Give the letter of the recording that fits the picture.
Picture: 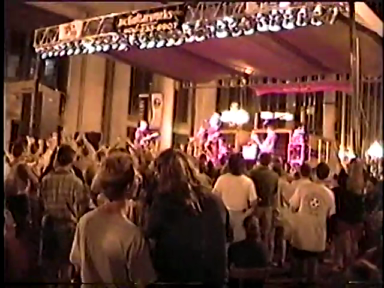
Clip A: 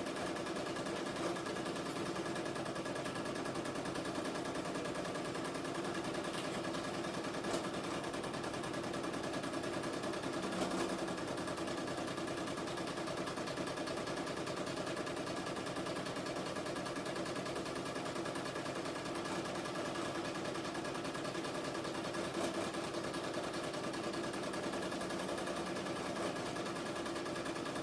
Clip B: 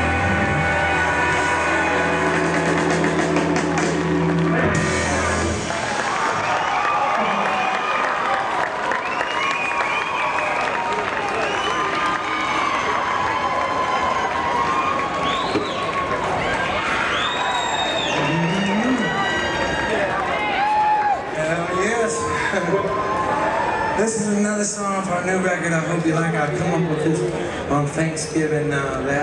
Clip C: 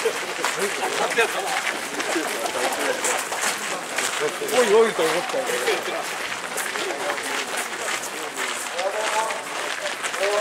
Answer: B